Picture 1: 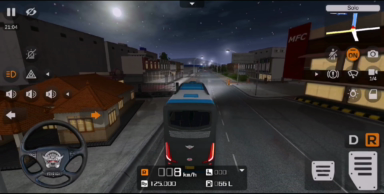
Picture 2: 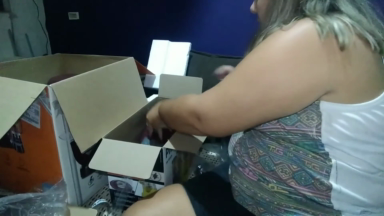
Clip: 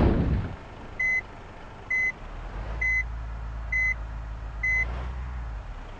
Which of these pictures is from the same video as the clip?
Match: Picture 1